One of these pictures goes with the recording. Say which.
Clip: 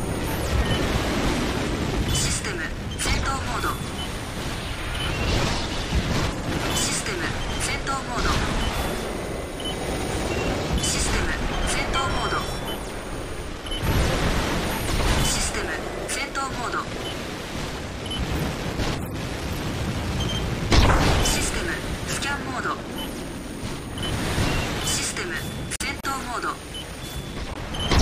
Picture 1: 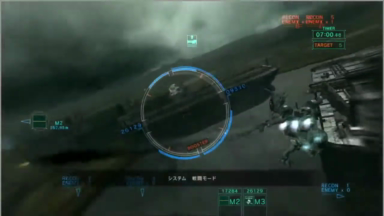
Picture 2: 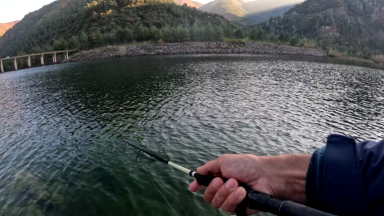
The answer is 1